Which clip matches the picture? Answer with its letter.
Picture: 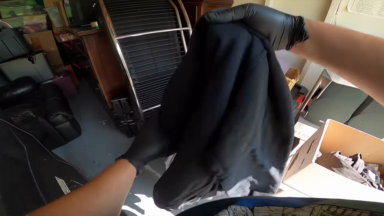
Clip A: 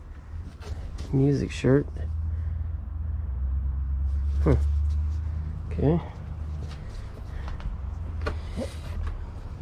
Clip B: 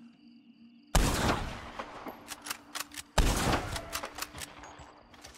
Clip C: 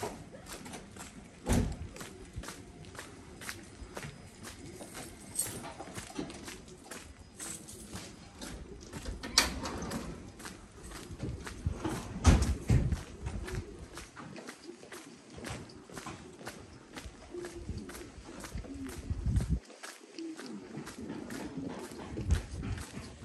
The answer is A